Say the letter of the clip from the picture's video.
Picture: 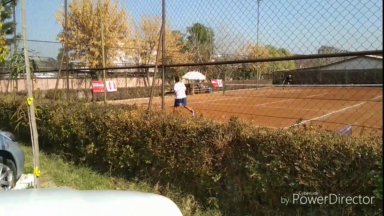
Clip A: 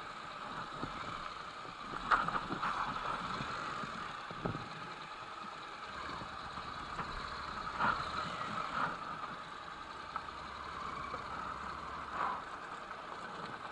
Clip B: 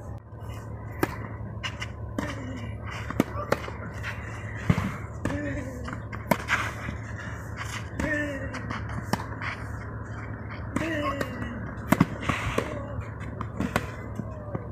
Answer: B